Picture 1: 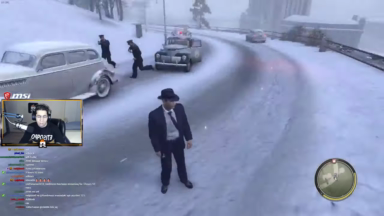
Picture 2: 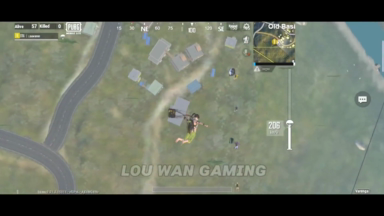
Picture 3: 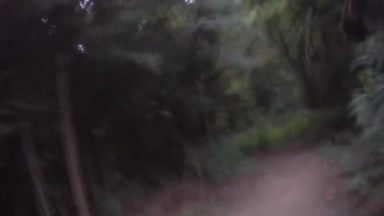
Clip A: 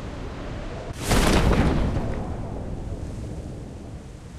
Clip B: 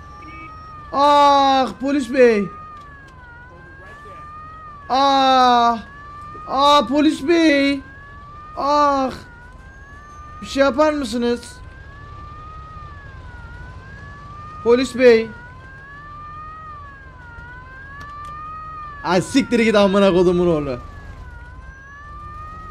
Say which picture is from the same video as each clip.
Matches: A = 2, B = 1